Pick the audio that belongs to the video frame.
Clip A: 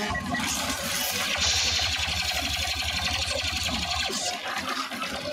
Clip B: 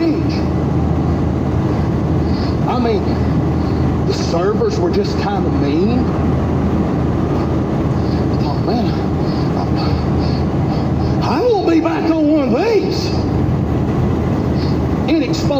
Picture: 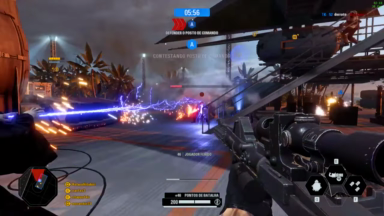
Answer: A